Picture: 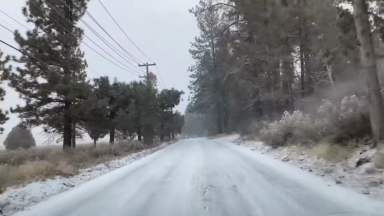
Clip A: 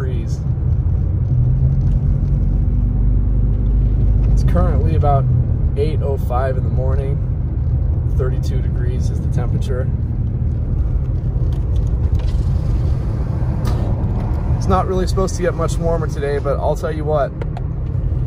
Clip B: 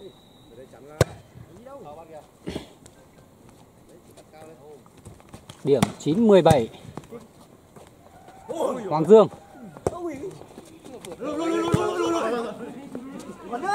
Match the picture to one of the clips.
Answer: A